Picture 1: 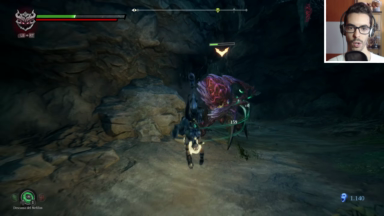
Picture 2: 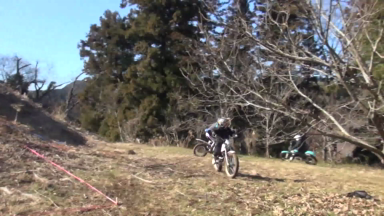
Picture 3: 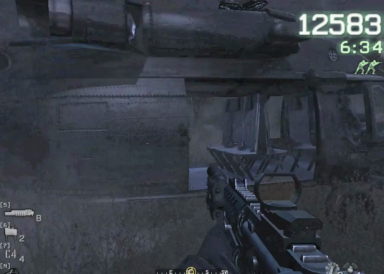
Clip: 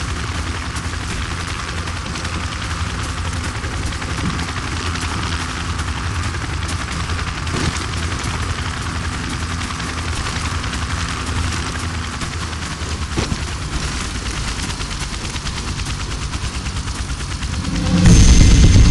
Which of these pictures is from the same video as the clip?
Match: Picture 3